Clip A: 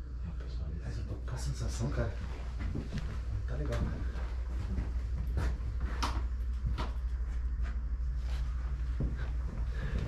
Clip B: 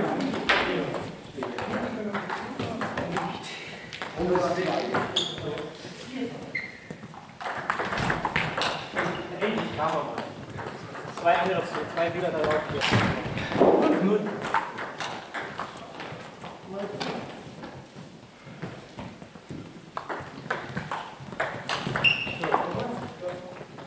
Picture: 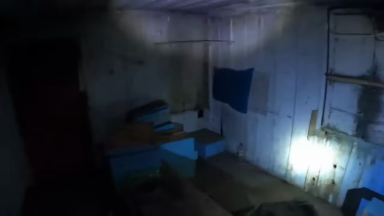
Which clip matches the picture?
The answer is A